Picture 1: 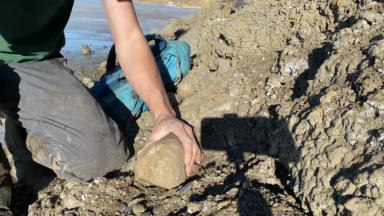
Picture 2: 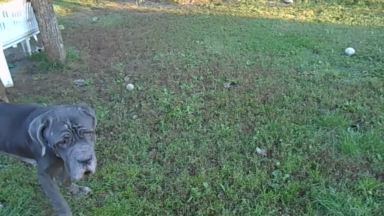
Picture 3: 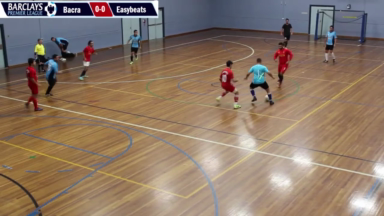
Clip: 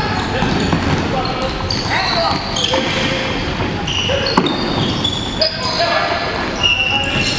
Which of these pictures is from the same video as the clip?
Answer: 3